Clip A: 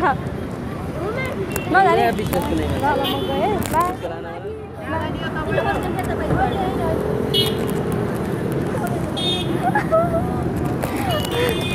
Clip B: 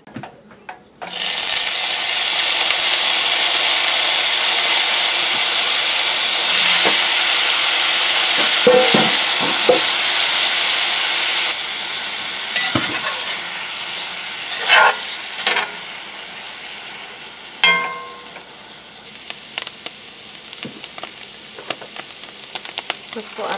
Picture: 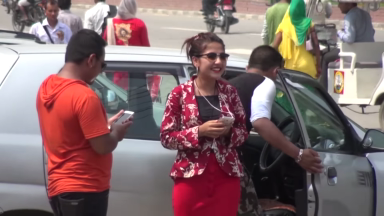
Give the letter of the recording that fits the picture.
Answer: A